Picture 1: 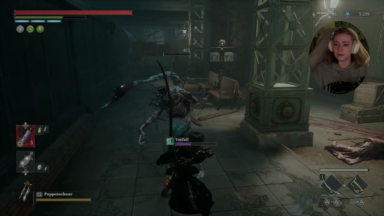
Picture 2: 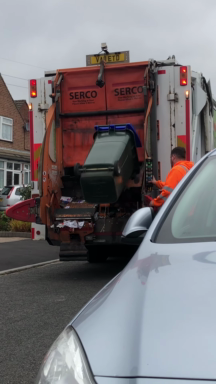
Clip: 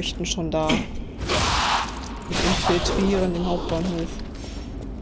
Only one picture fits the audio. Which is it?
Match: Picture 1